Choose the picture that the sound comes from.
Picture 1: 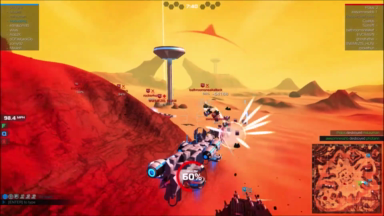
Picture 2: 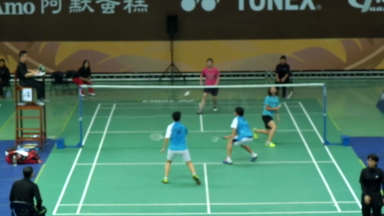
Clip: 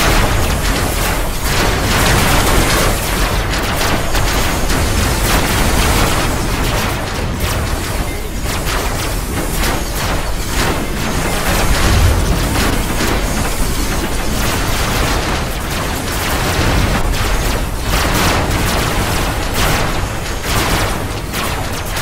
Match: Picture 1